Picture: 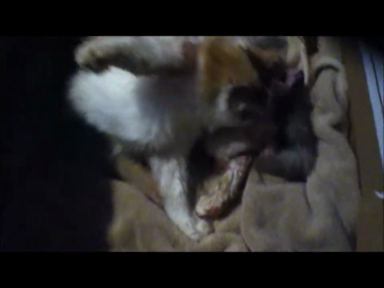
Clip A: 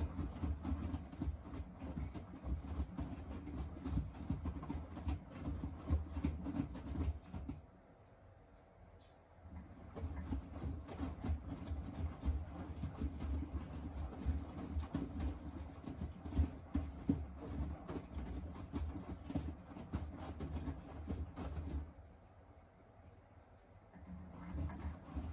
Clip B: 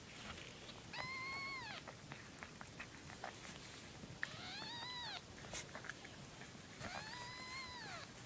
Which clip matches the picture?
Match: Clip B